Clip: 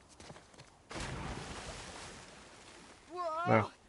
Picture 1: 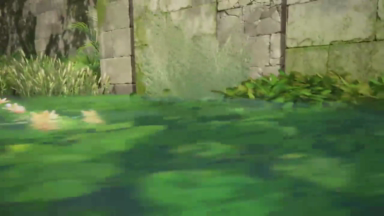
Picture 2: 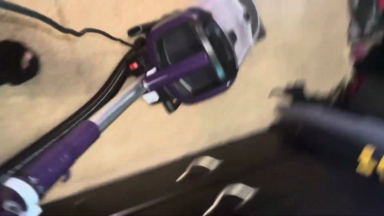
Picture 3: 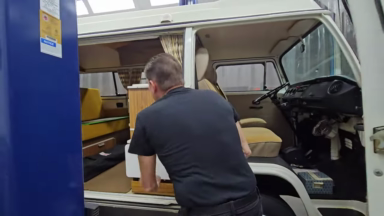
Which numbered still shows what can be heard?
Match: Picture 1